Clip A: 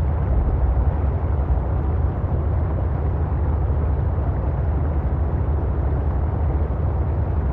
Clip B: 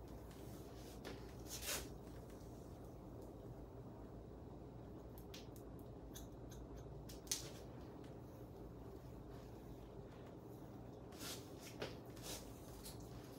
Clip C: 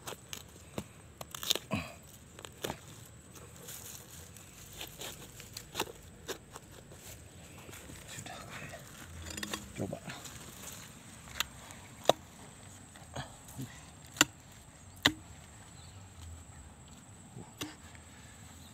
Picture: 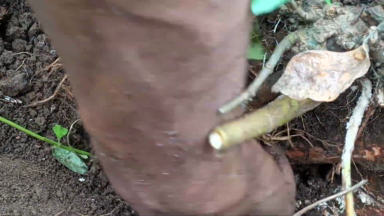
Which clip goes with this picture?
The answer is C